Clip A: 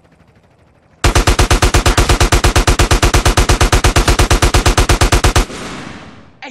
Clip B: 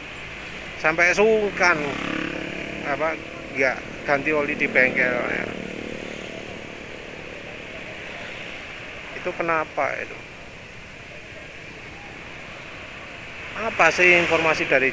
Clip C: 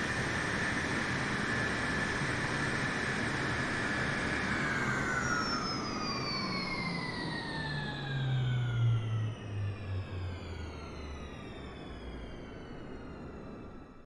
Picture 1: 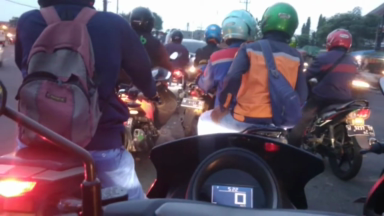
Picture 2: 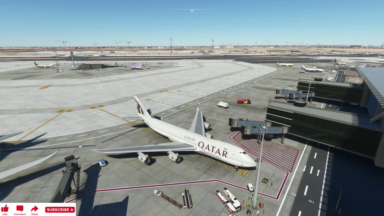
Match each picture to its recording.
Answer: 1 B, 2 C